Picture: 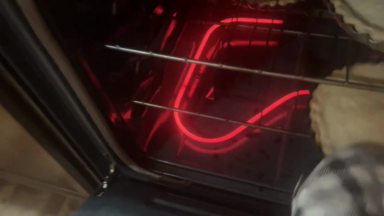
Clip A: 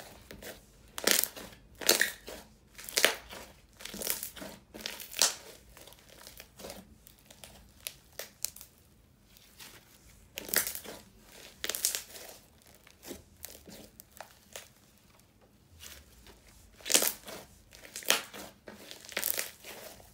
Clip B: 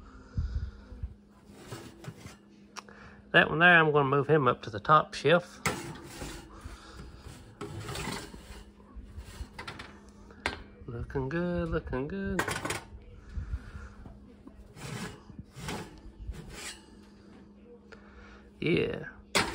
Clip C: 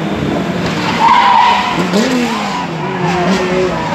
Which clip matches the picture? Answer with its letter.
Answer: B